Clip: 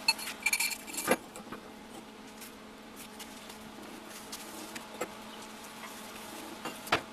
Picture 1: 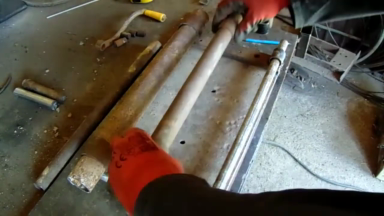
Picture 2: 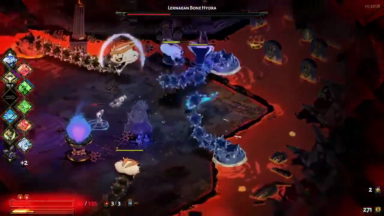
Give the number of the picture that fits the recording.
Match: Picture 1